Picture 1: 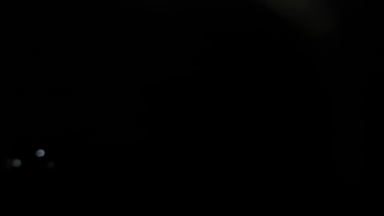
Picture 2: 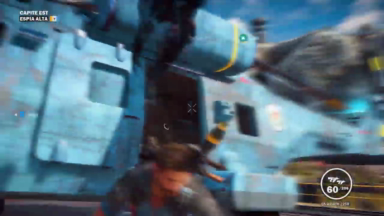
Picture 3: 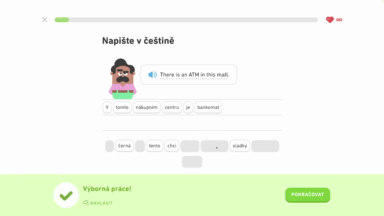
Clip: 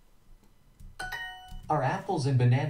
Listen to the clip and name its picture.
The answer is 3